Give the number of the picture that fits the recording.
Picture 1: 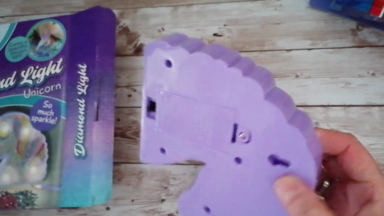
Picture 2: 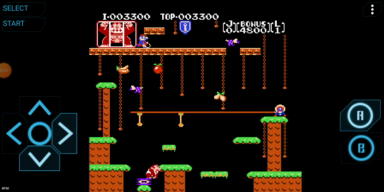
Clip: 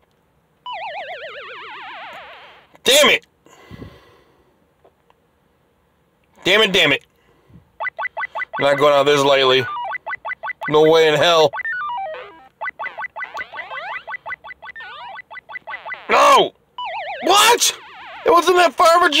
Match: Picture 2